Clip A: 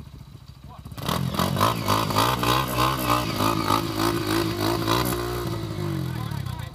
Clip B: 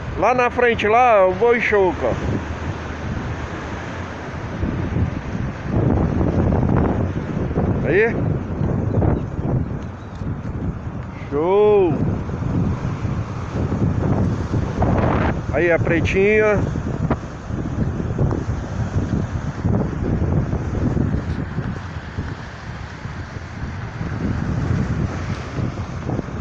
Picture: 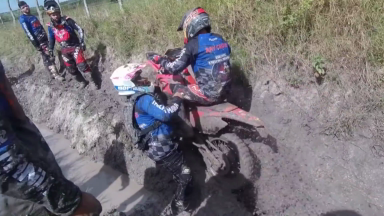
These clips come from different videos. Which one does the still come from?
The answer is A